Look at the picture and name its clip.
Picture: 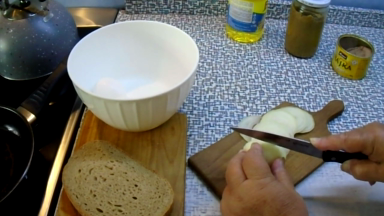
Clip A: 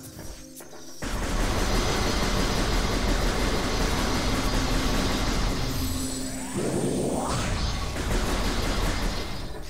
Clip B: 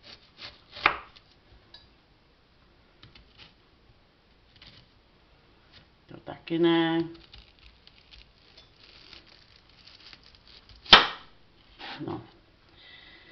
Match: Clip B